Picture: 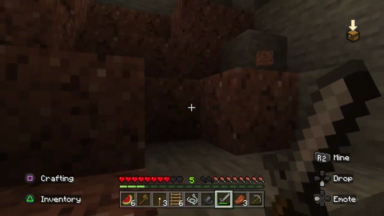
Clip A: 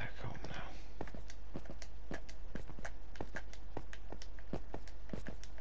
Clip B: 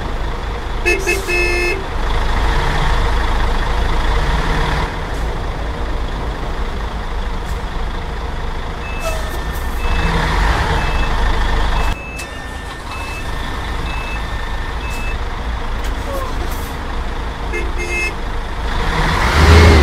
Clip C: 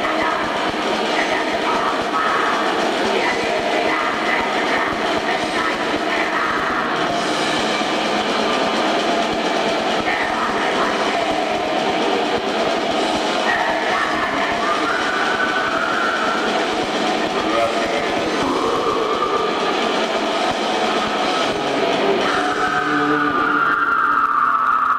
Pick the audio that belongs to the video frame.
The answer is A